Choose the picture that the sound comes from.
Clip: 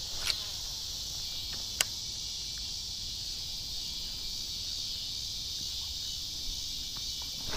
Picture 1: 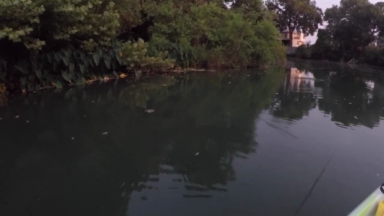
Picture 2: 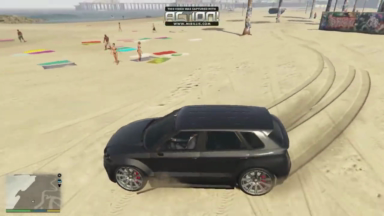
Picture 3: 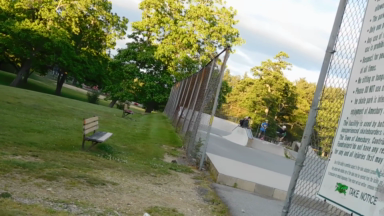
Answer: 1